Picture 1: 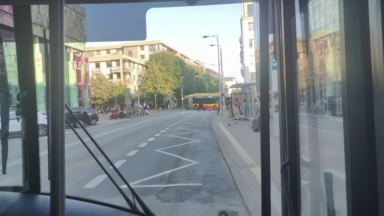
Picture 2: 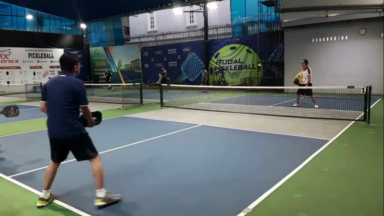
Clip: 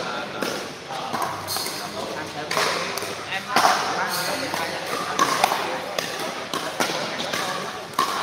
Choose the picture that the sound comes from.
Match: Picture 2